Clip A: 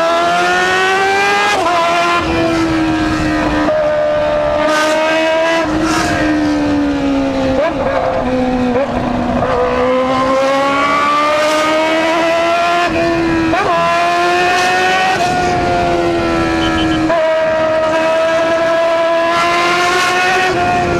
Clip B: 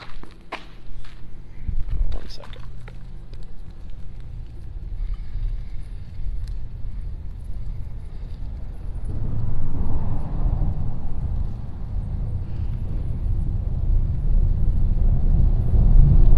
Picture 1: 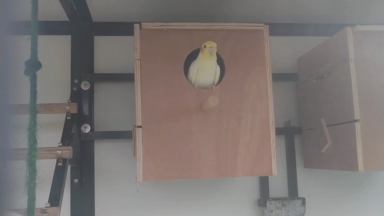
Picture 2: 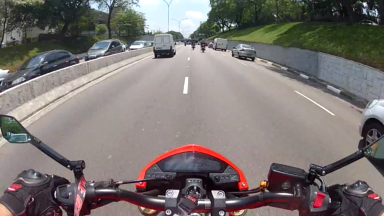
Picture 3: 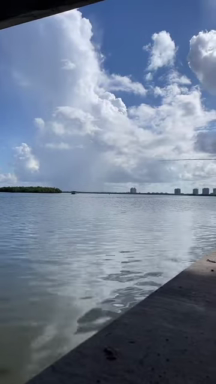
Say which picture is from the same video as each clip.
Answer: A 2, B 3